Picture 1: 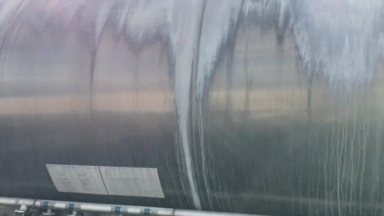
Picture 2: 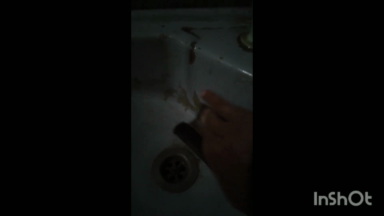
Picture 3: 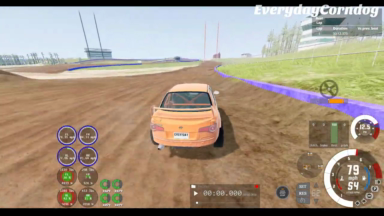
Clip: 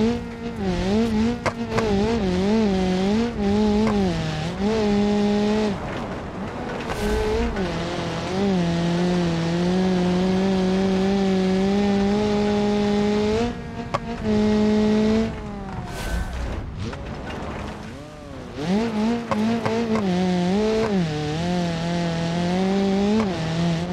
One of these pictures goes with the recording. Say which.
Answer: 3